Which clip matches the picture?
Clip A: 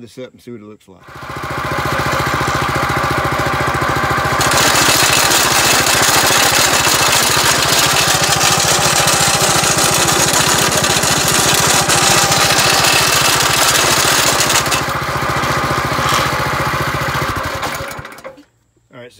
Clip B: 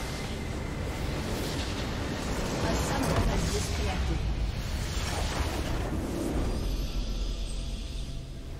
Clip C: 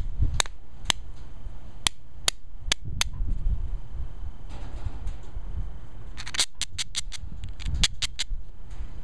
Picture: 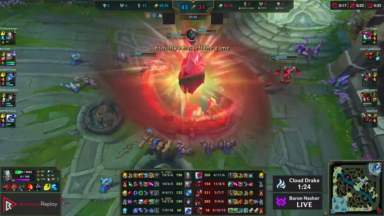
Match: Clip B